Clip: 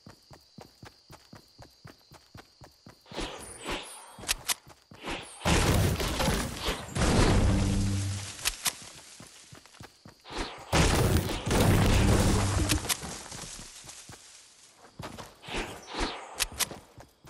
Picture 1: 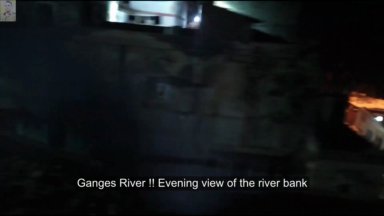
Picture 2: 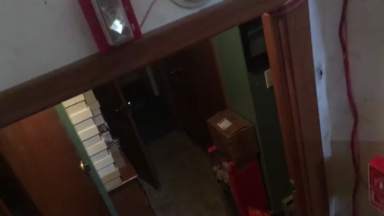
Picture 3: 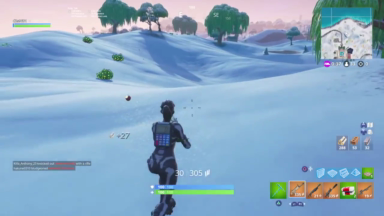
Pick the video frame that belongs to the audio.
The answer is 3